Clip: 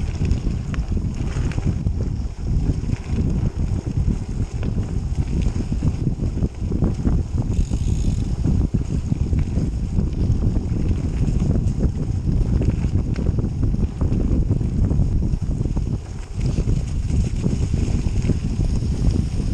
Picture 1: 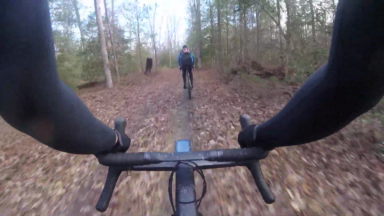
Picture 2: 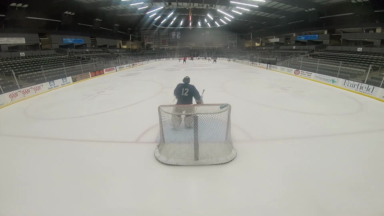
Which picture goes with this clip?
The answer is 1